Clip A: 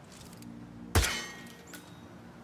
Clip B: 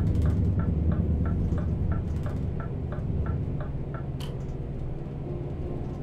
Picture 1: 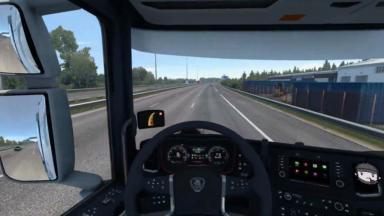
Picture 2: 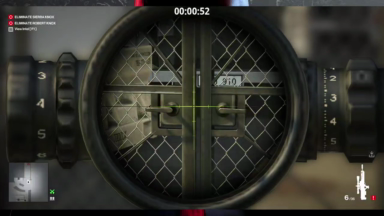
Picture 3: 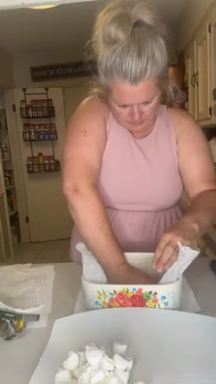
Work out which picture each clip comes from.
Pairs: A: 2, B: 1